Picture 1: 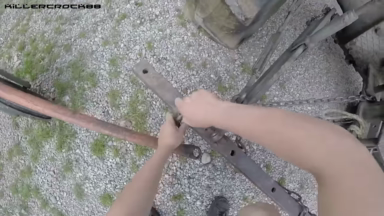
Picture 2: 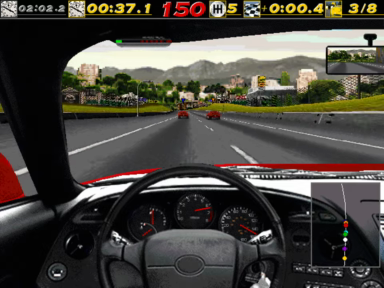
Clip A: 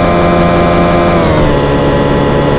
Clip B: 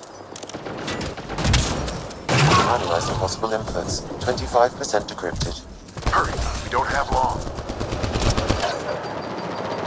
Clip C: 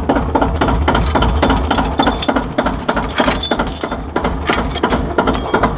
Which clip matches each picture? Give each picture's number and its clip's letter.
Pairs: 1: C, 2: A